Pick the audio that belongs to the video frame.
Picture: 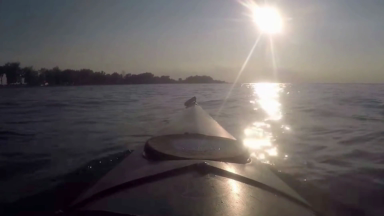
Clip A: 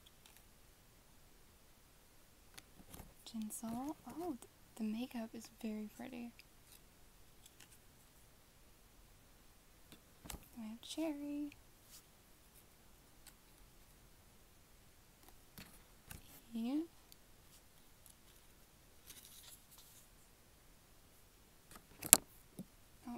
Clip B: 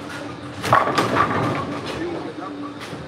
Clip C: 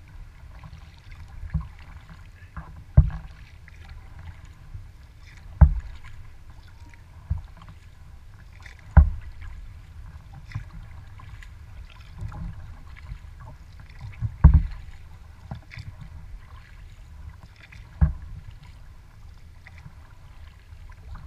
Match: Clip C